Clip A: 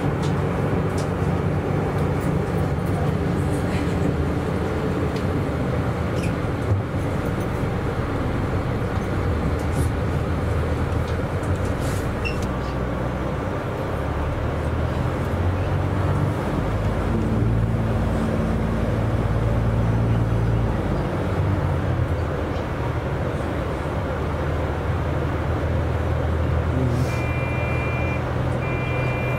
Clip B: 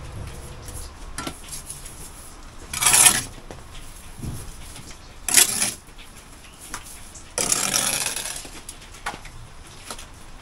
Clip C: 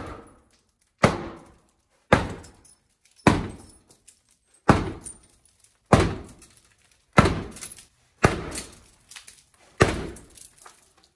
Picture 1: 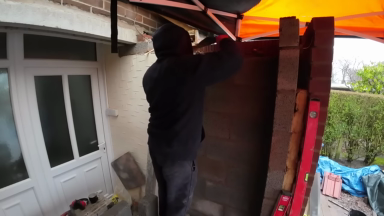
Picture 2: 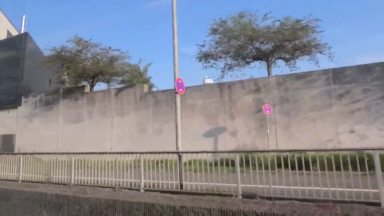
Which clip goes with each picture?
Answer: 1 B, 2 A